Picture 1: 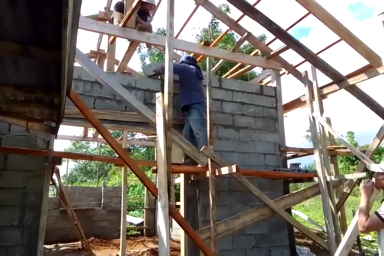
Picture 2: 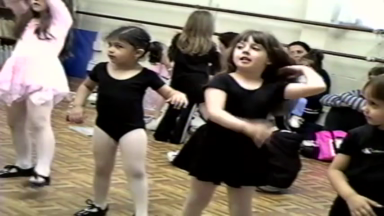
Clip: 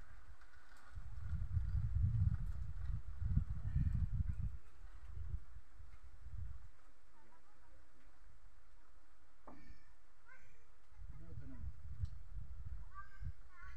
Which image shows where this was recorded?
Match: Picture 1